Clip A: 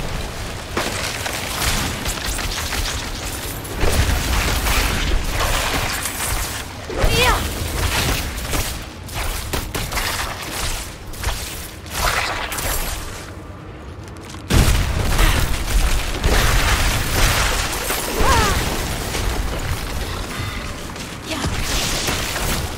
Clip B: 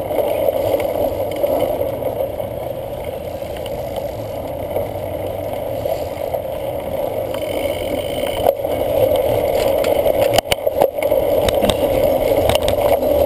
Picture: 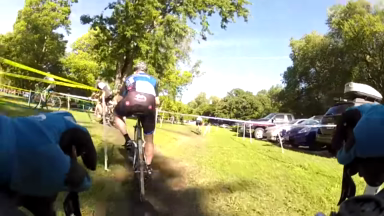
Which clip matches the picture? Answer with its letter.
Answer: B